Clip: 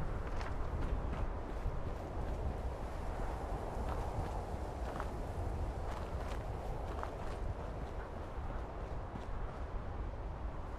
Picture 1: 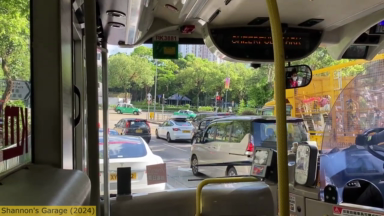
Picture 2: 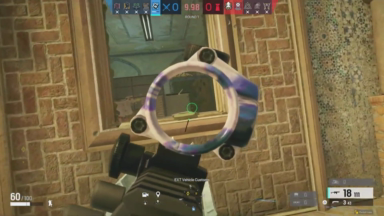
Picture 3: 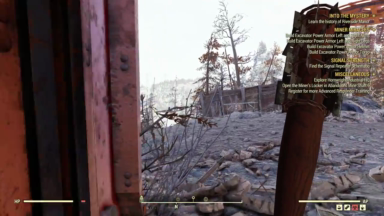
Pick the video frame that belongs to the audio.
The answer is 3